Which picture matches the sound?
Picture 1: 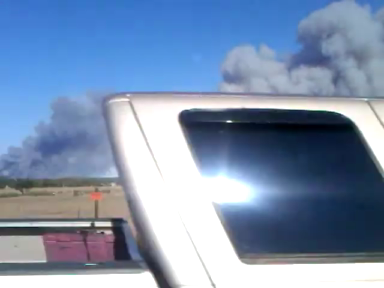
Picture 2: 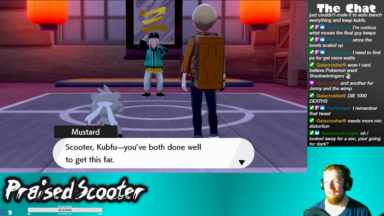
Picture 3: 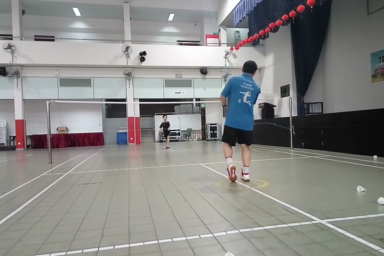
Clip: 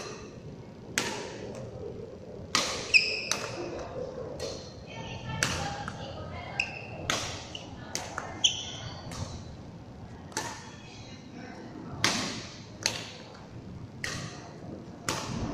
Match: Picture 3